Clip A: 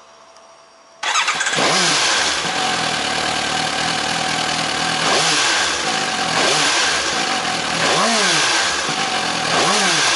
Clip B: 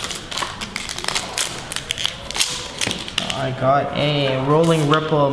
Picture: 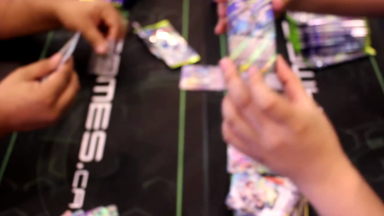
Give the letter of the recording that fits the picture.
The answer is B